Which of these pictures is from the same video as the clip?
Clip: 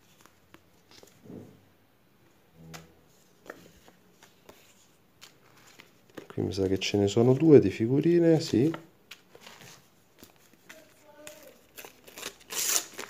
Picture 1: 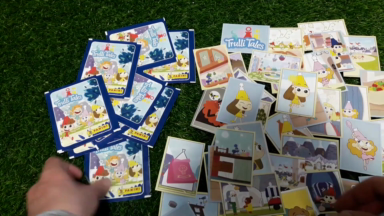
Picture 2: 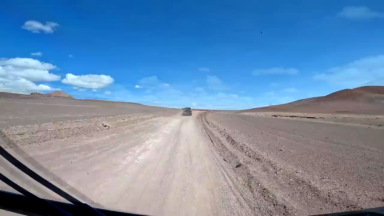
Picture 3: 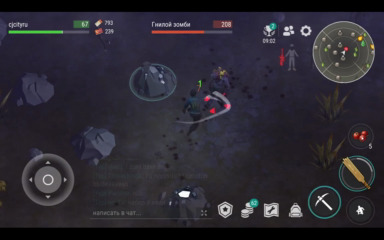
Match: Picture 1